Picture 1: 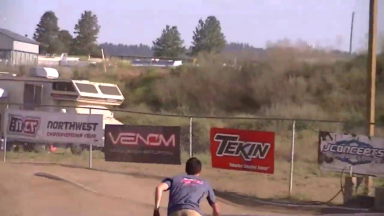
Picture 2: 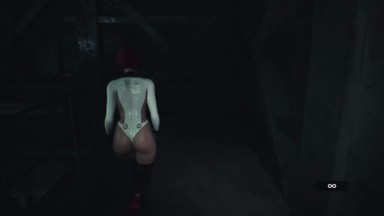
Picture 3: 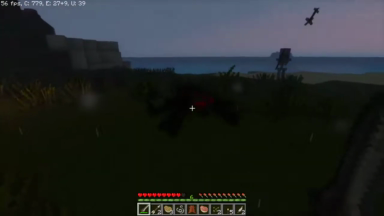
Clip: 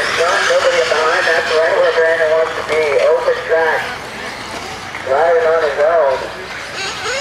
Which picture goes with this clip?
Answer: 1